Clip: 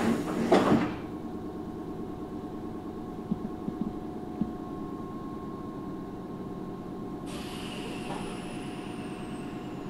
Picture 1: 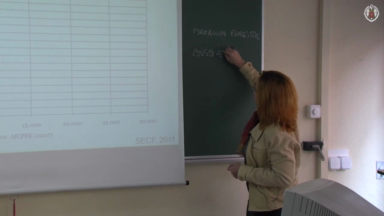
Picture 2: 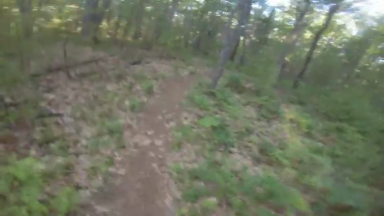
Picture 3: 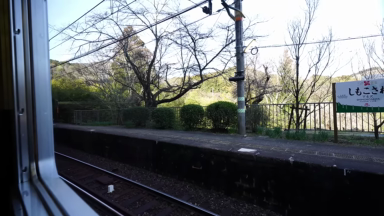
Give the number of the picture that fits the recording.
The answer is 3